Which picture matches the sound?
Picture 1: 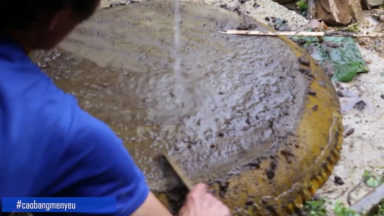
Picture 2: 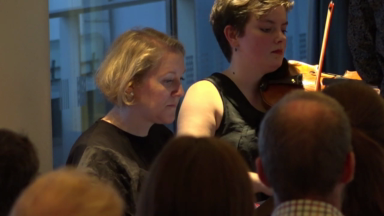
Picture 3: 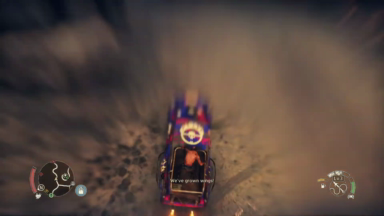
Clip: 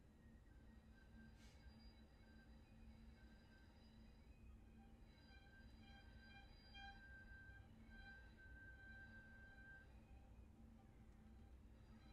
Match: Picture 2